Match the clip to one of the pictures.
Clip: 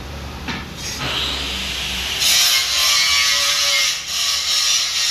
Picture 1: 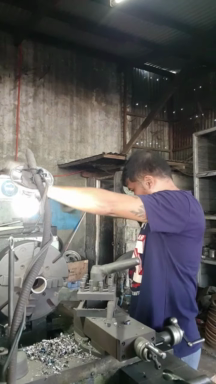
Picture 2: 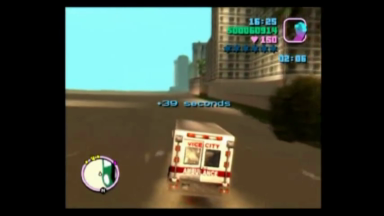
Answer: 1